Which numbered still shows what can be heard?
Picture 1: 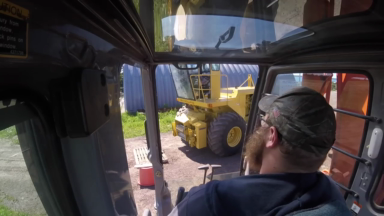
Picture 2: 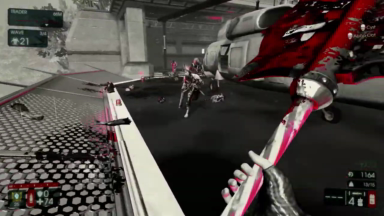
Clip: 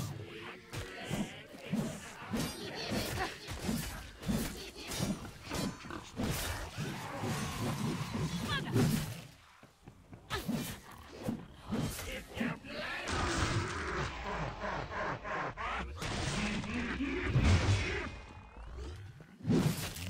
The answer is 2